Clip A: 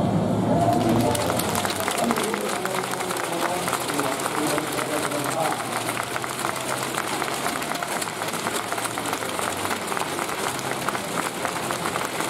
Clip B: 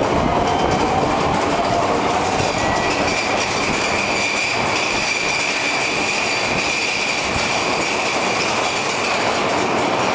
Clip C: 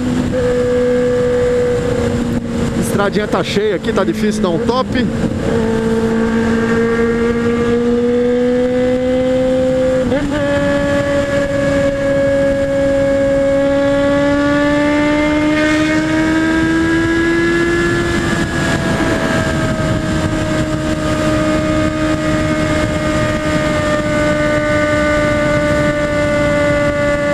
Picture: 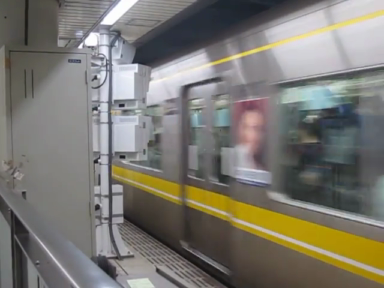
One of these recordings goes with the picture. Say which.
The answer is B